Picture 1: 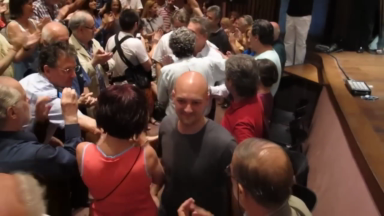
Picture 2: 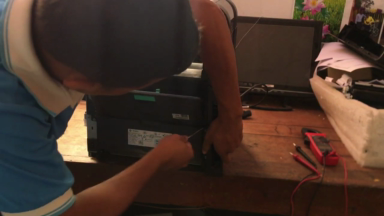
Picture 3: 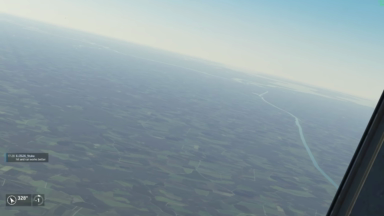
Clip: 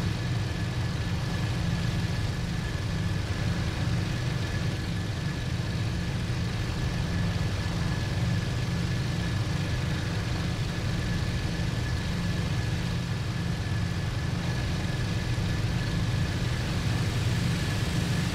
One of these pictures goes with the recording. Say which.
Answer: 3